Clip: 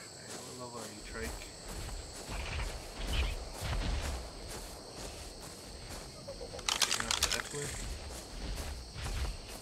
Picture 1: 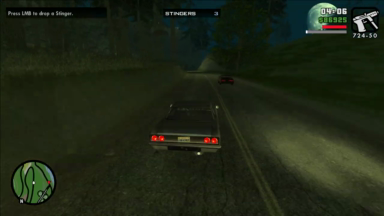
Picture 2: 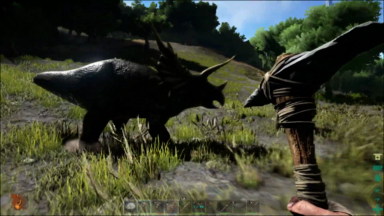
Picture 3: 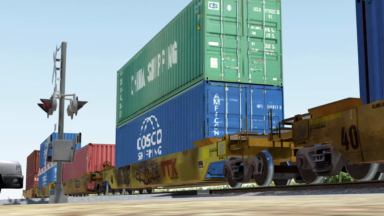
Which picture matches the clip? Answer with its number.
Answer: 2